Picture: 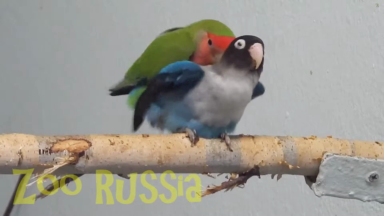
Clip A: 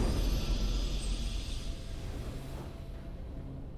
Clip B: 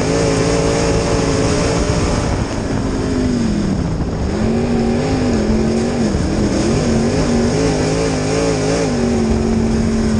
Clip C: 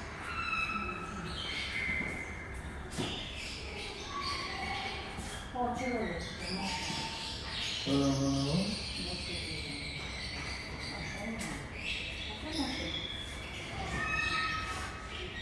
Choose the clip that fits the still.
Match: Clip C